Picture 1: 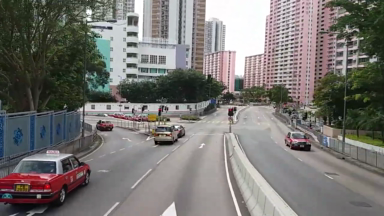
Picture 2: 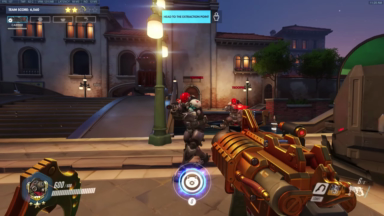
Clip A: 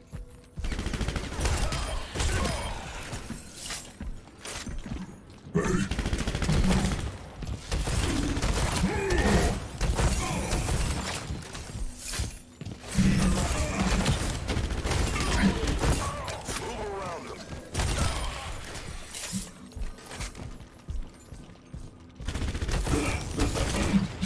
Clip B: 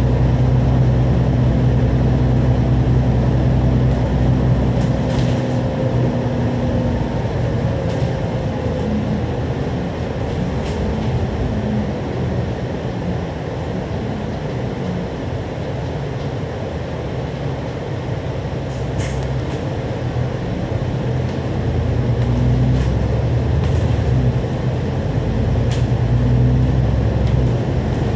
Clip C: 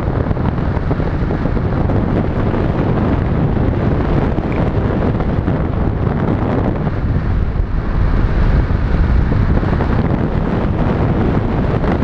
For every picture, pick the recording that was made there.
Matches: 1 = B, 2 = A